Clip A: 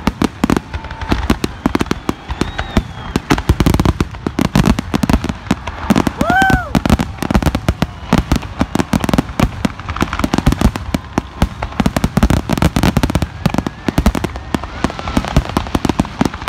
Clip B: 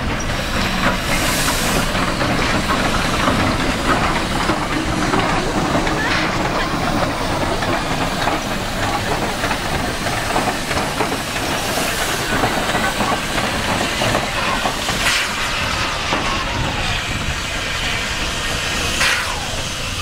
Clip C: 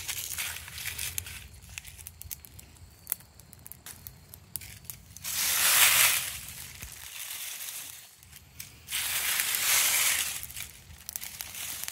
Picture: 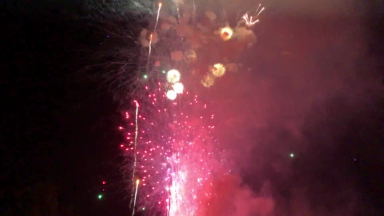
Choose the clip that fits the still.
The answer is A